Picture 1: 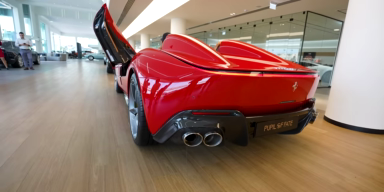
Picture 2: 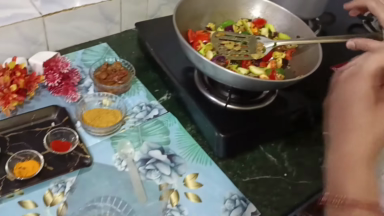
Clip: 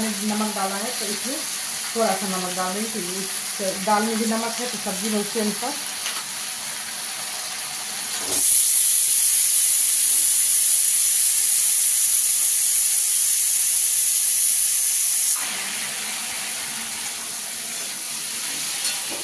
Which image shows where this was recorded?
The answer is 2